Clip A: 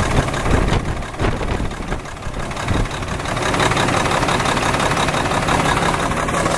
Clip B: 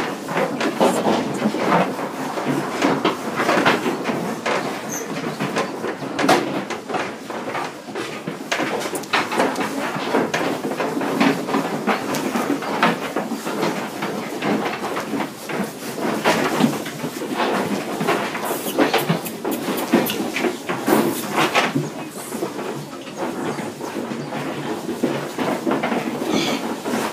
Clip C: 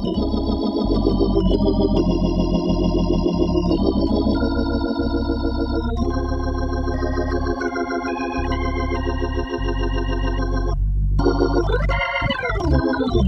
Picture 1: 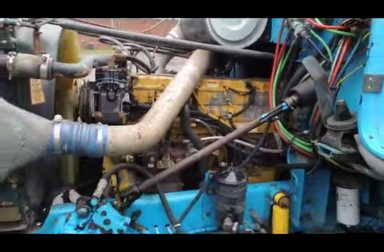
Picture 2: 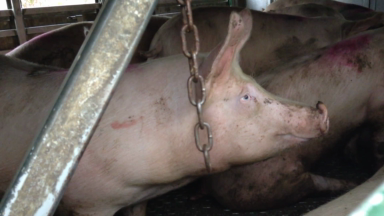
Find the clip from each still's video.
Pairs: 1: A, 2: B